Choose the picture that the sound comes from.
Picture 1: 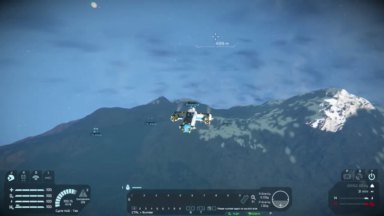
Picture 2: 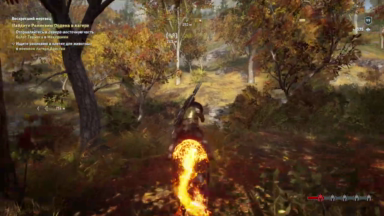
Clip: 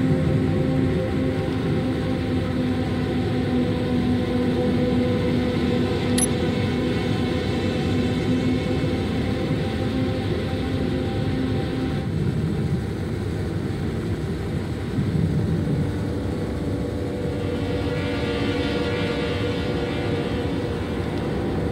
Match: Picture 1